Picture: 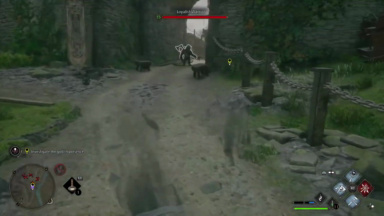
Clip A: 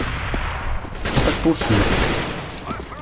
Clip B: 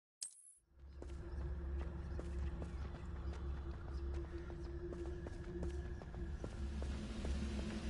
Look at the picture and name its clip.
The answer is B